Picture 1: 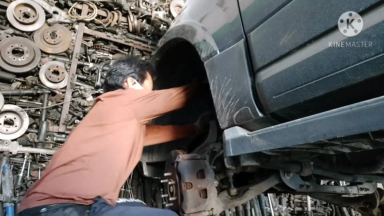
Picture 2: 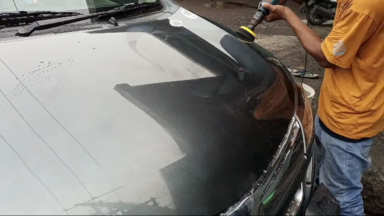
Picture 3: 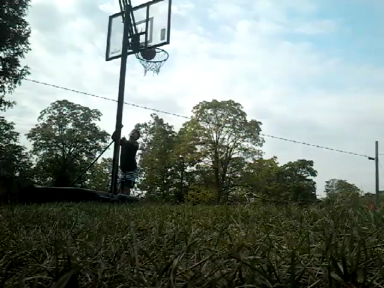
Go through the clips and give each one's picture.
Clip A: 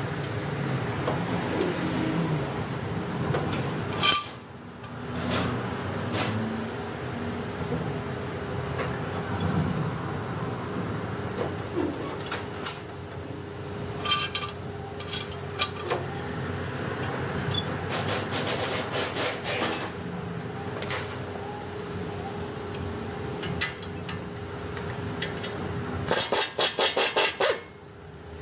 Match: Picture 1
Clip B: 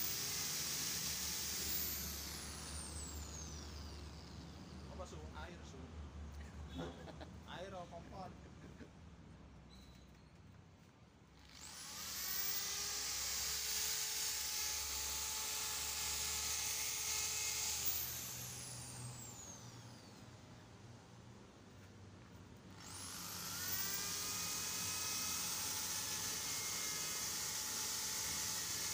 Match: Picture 2